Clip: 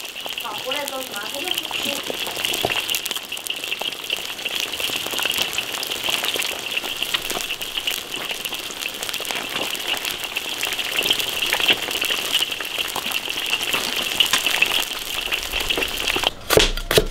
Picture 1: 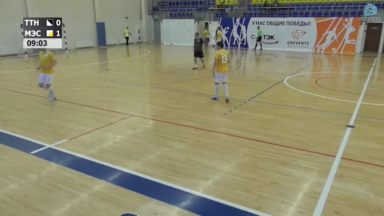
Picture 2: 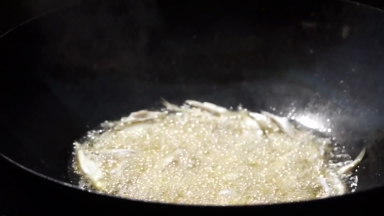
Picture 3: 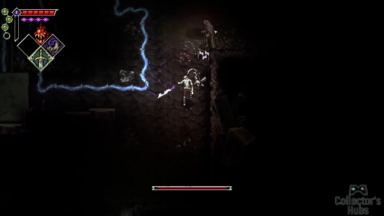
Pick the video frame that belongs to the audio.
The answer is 2